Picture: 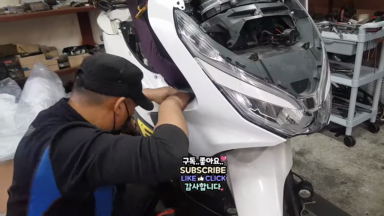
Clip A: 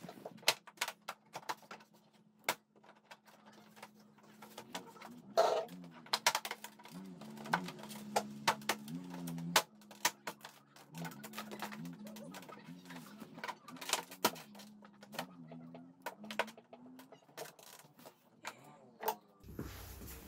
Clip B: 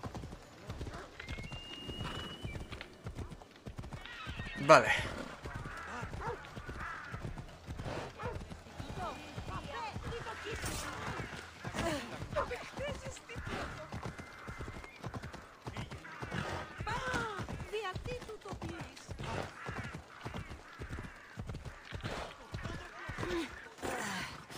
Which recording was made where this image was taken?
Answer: A